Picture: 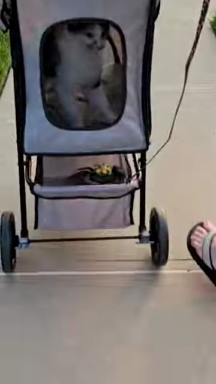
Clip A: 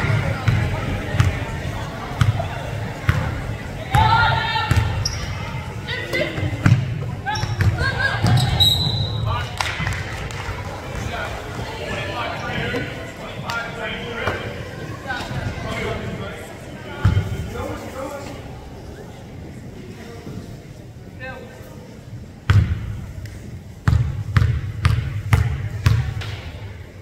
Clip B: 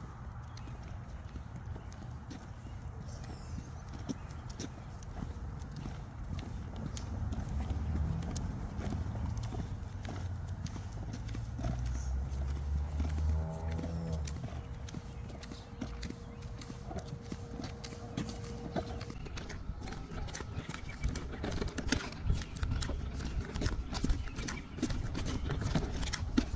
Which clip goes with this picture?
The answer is B